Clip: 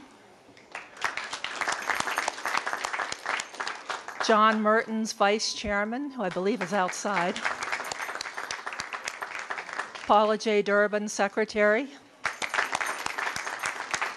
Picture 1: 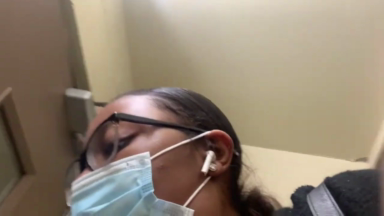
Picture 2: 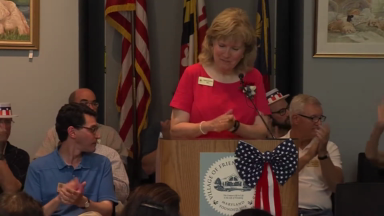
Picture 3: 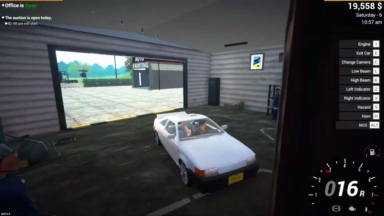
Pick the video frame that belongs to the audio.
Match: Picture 2